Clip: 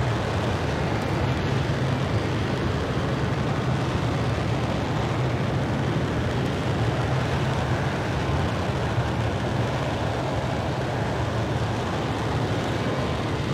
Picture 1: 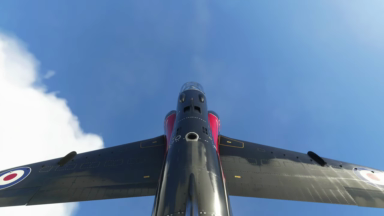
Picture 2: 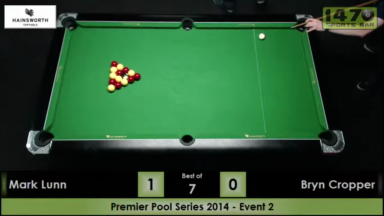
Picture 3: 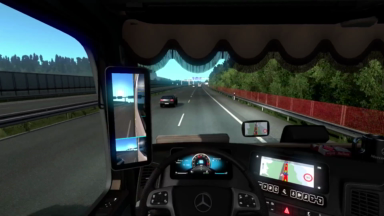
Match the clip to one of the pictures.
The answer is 1